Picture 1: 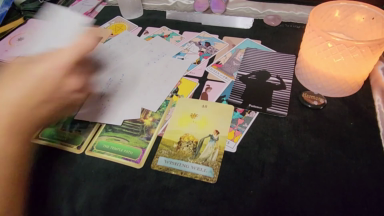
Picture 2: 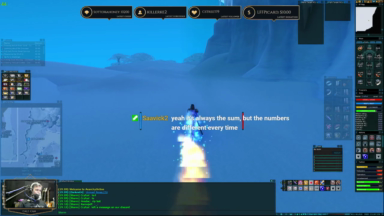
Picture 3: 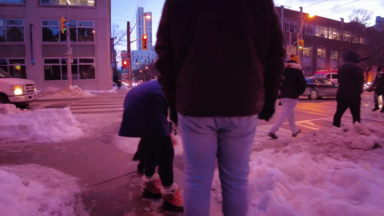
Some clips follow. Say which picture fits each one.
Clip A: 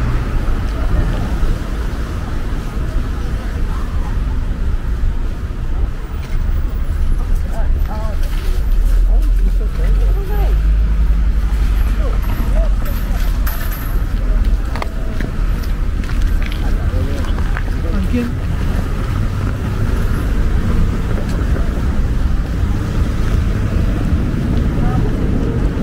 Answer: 3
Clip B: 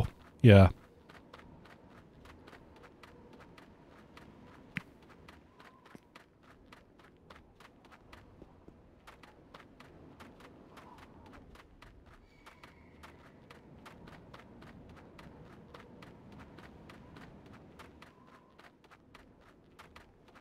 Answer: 2